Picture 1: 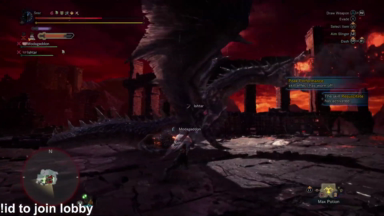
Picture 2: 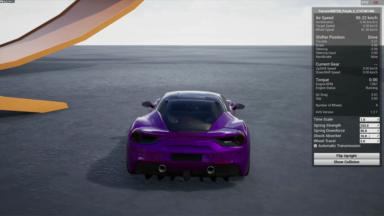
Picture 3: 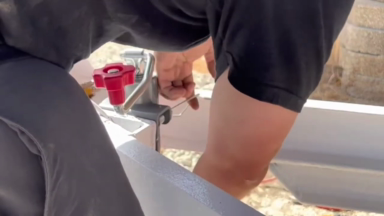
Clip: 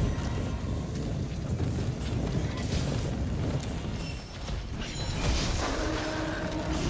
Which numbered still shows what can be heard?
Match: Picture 1